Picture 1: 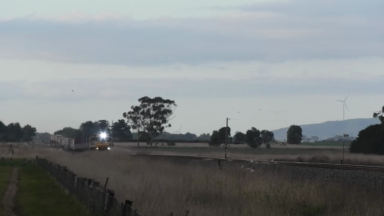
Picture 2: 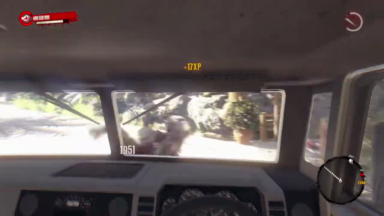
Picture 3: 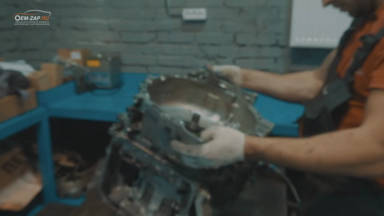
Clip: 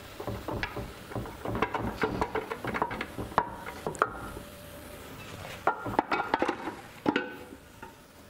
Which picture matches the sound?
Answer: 3